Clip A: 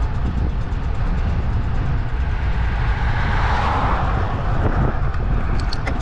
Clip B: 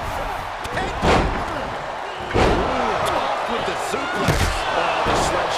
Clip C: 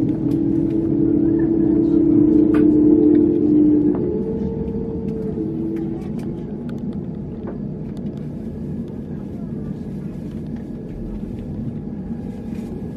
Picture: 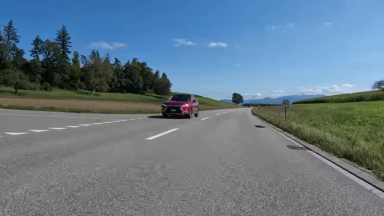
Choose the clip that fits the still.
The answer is A